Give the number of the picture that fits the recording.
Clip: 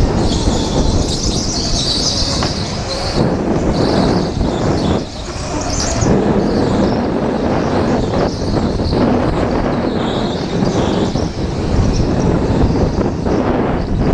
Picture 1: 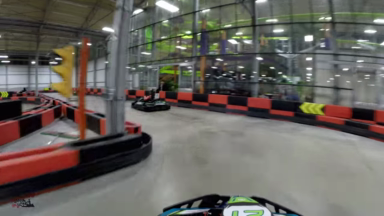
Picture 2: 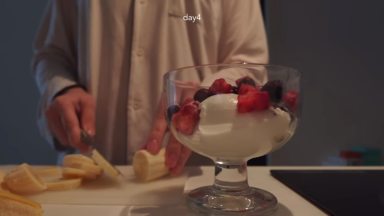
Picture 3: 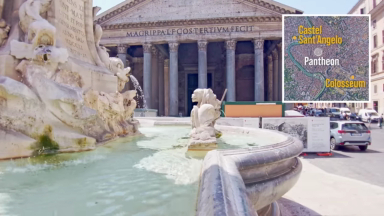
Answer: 1